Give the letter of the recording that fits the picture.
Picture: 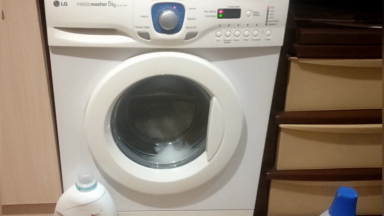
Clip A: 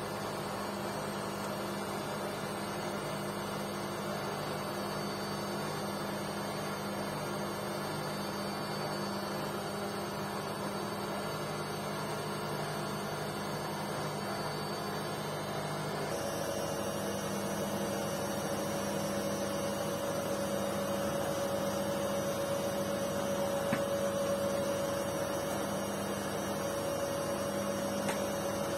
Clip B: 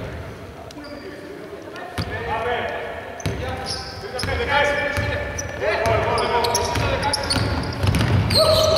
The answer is A